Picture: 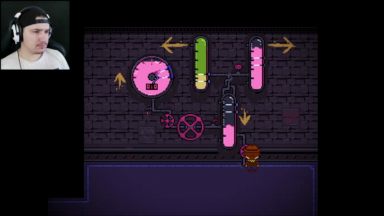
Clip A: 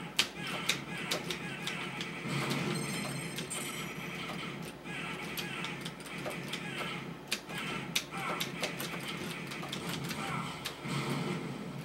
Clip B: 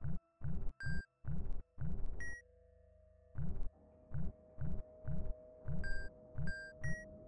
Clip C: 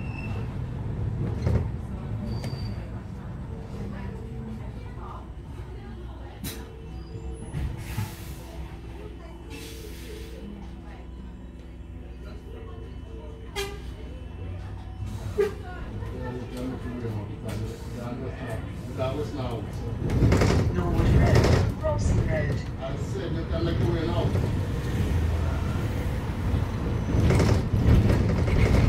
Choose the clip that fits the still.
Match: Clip B